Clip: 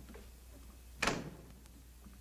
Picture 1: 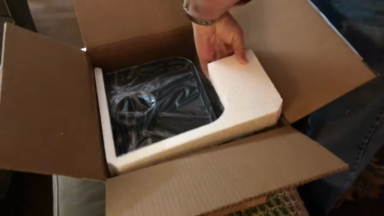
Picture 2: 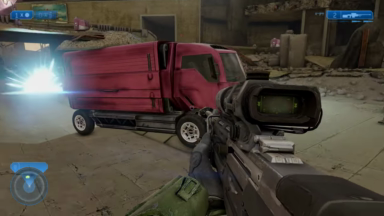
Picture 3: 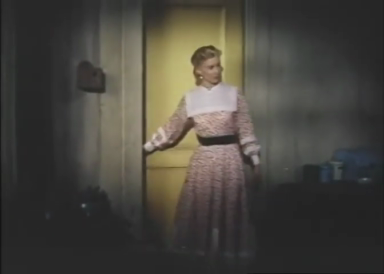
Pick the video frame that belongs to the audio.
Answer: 3